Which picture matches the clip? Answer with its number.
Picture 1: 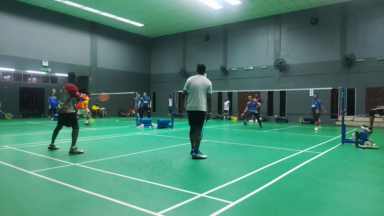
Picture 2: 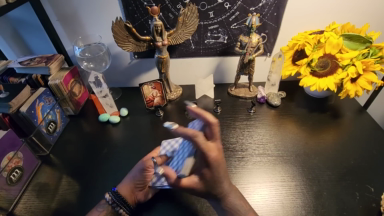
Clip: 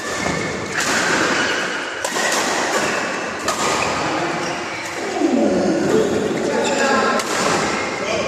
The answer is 1